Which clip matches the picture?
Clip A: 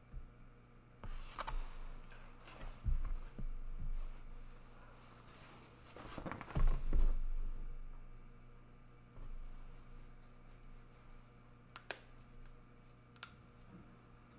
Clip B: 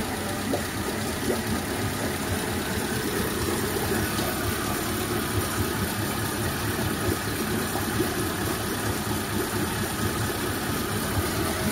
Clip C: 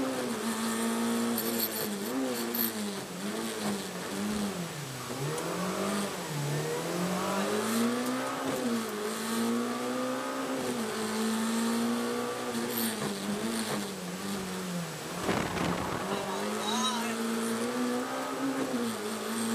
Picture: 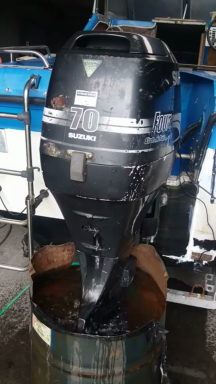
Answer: B